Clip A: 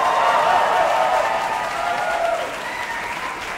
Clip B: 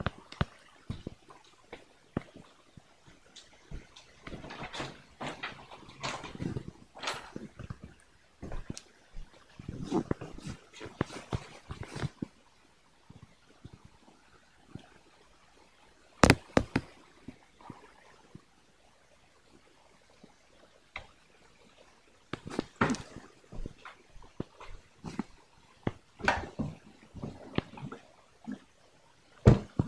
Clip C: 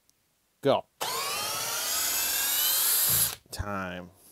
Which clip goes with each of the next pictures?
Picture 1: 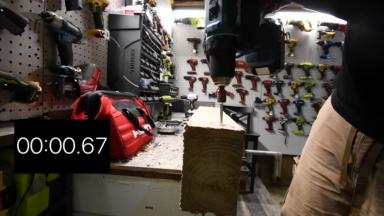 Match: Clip C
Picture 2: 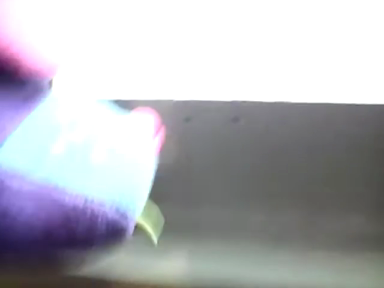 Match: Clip B